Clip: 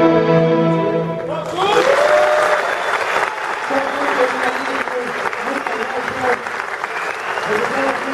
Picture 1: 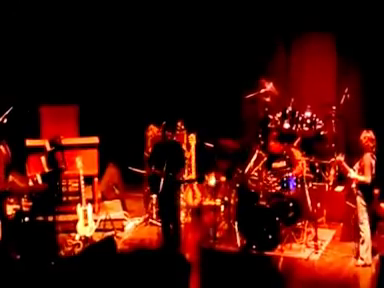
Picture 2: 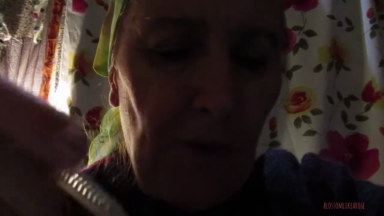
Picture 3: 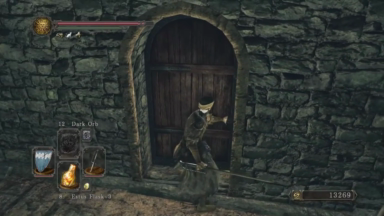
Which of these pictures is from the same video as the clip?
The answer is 1